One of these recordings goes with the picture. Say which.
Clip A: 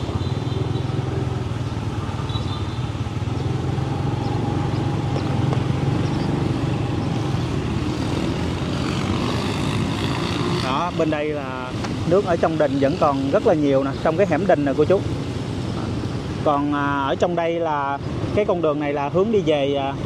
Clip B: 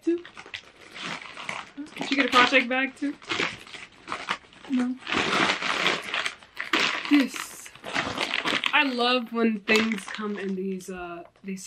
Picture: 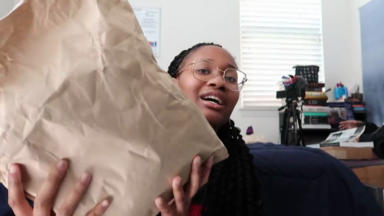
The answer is B